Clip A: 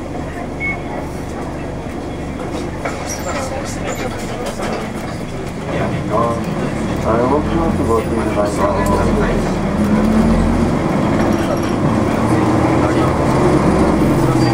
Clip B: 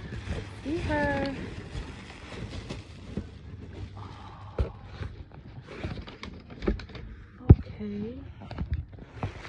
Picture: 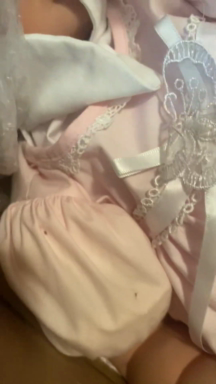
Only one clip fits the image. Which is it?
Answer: B